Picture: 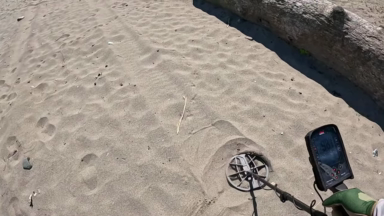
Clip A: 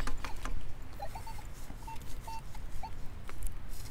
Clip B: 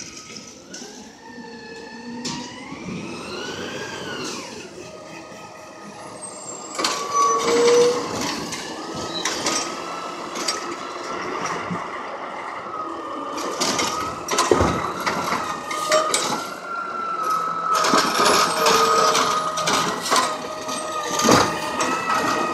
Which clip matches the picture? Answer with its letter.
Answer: A